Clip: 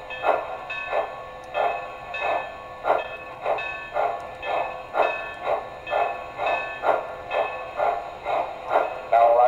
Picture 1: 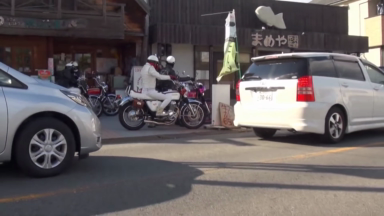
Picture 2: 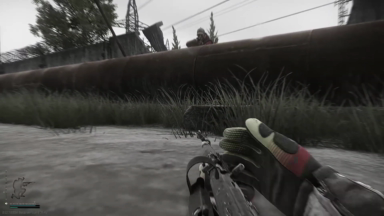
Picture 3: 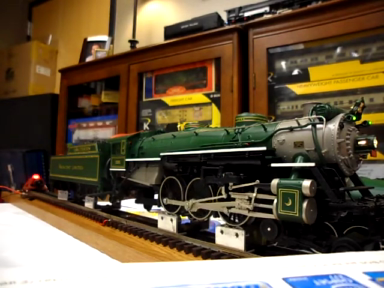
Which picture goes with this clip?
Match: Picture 3